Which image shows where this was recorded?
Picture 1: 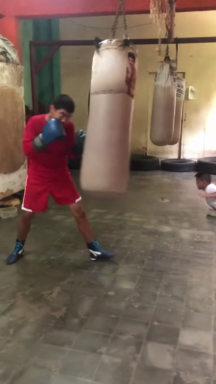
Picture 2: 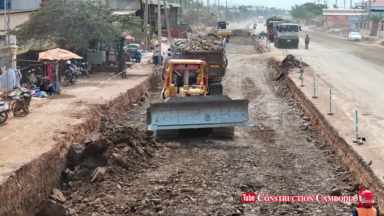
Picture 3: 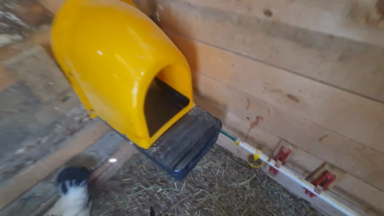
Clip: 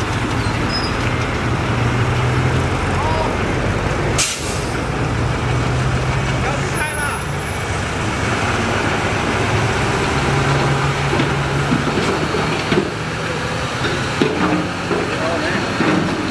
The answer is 2